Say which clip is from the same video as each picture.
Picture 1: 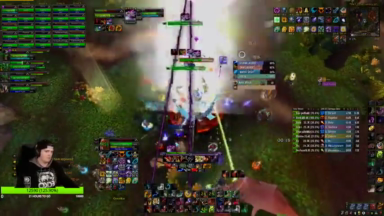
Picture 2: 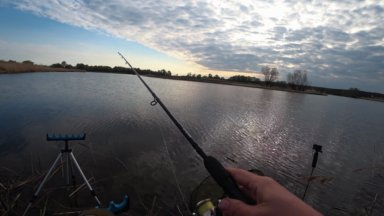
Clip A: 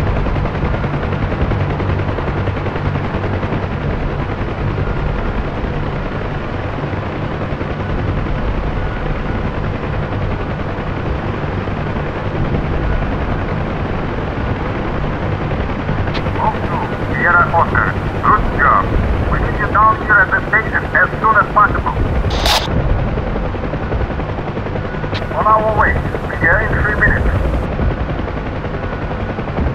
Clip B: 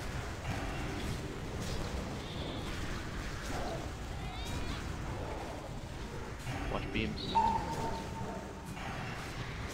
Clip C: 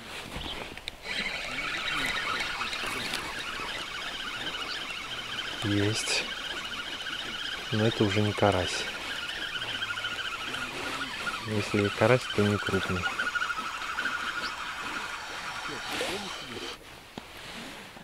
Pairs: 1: B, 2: C